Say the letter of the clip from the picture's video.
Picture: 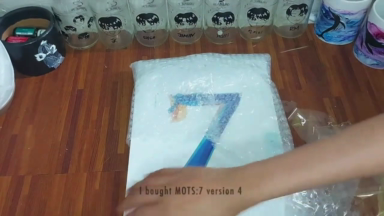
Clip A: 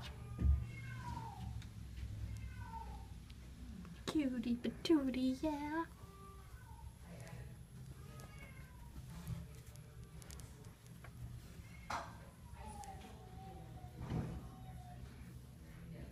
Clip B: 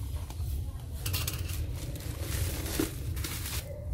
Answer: B